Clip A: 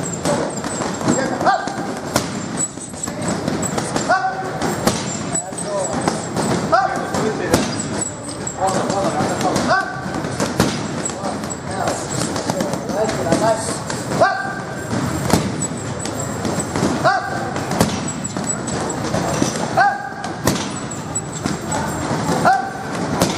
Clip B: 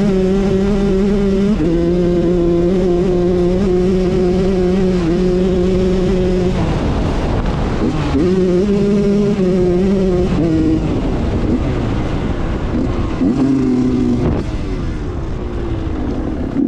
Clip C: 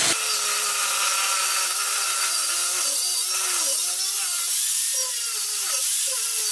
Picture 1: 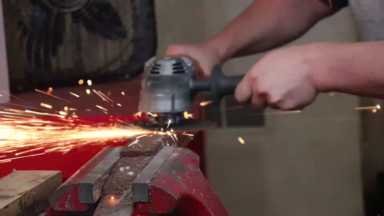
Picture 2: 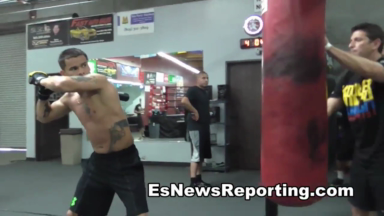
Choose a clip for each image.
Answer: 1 C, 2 A